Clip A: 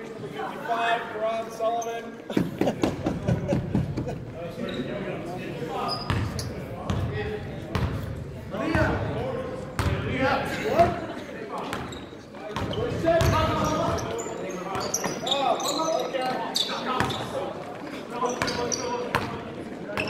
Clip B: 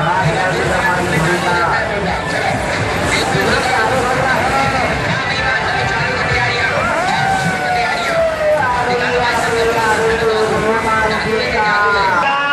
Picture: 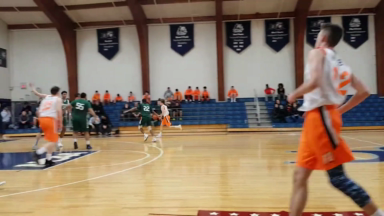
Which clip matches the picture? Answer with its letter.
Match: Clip A